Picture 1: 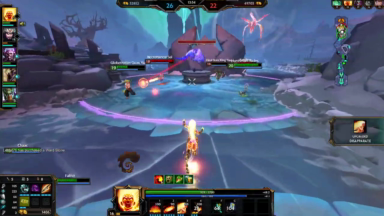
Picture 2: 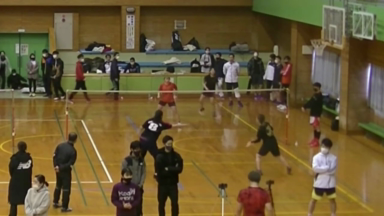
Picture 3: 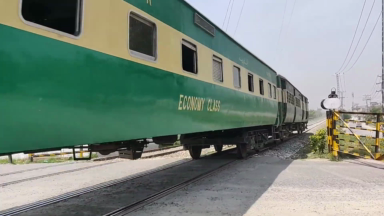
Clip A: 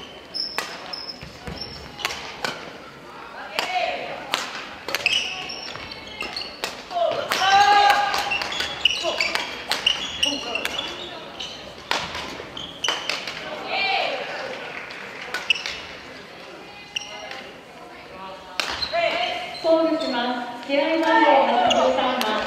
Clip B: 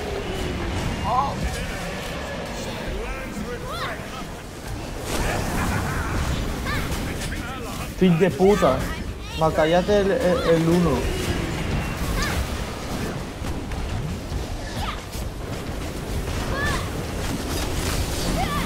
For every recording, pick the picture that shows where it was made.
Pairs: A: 2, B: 1